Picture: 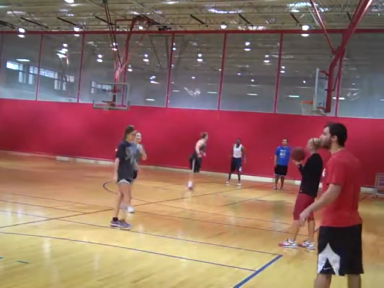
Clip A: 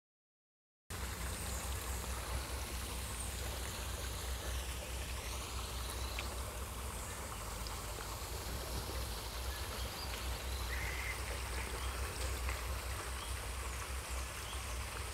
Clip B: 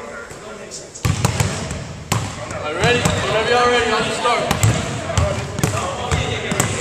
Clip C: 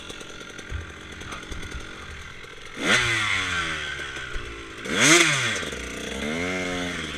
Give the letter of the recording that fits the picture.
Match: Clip B